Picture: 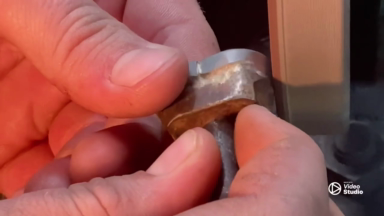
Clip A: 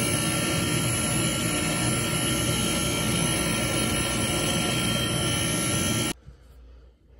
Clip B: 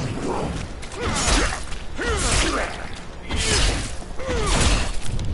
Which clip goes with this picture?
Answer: A